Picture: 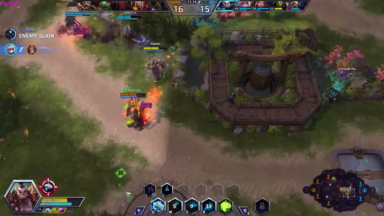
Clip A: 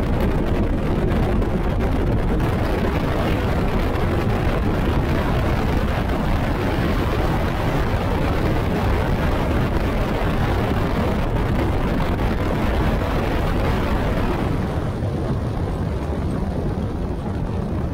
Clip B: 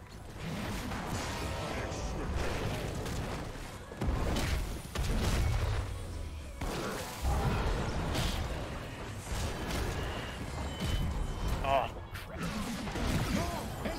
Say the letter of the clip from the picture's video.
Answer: B